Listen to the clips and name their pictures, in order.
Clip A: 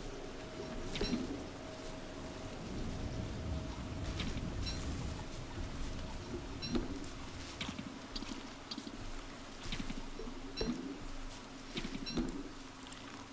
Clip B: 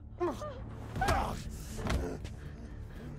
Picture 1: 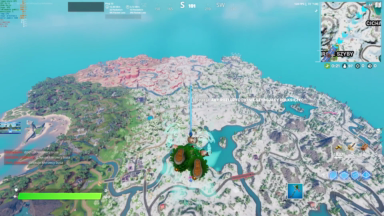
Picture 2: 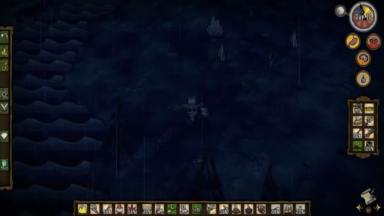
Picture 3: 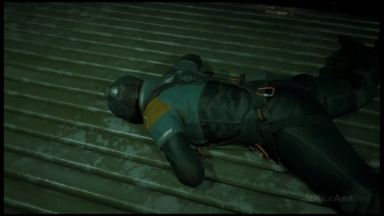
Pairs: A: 2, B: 3